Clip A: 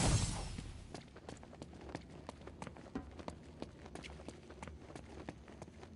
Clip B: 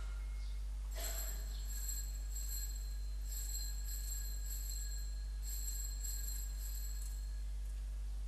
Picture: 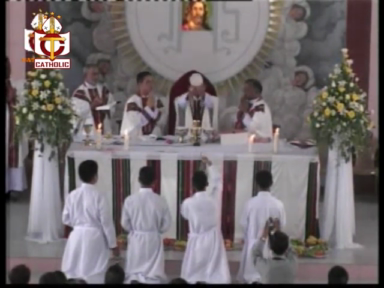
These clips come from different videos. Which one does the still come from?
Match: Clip B